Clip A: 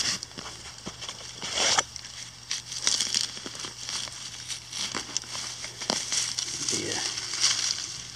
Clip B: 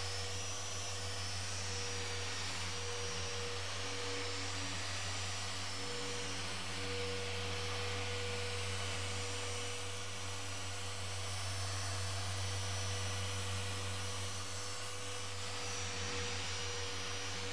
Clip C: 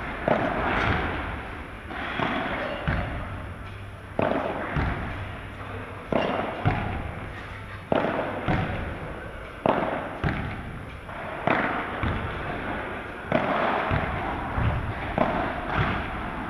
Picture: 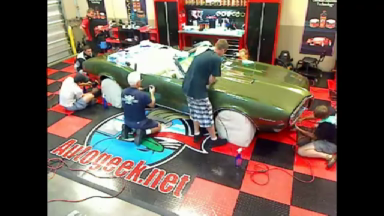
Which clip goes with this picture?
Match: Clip B